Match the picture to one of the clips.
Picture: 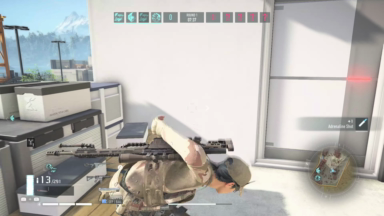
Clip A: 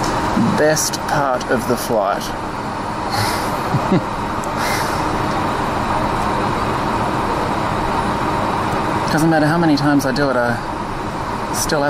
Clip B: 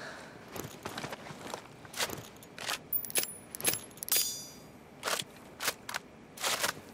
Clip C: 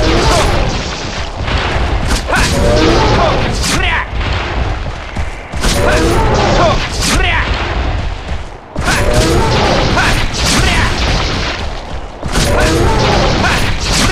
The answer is B